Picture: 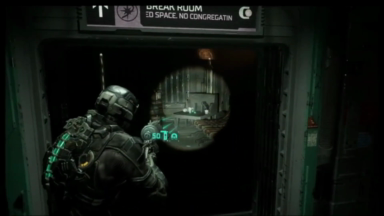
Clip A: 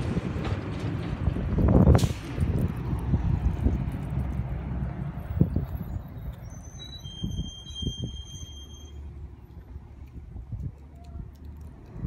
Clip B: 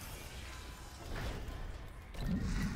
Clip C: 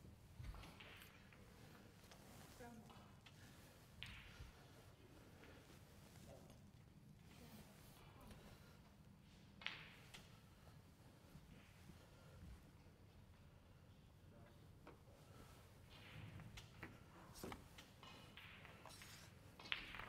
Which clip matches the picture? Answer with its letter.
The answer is B